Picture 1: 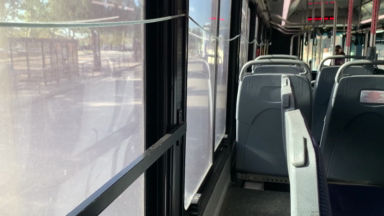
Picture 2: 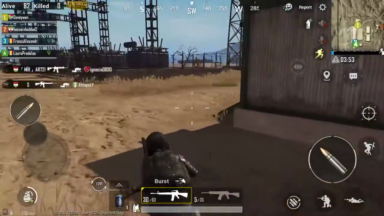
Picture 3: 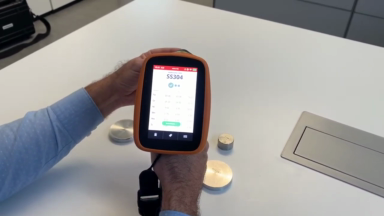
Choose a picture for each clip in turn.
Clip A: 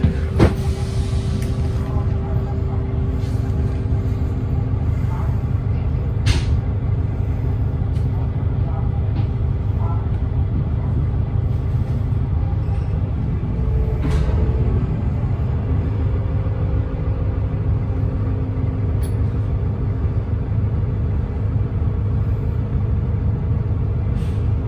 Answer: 1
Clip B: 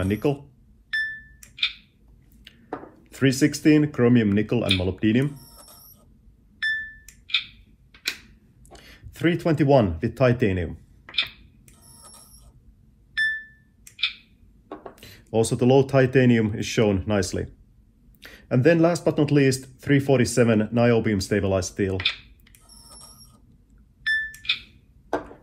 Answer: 3